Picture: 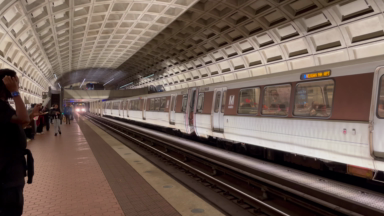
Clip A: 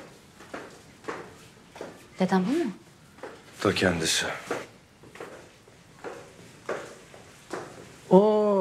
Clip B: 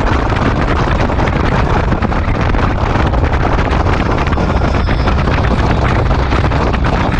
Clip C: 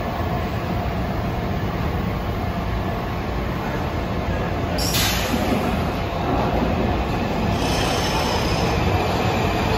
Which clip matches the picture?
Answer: C